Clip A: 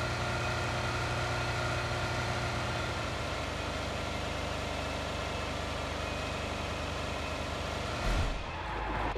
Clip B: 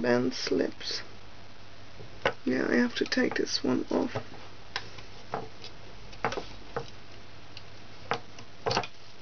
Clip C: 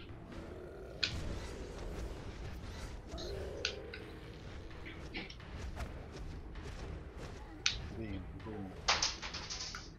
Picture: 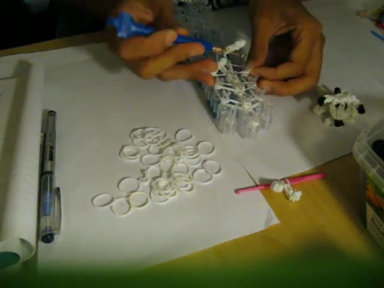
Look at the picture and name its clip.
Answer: B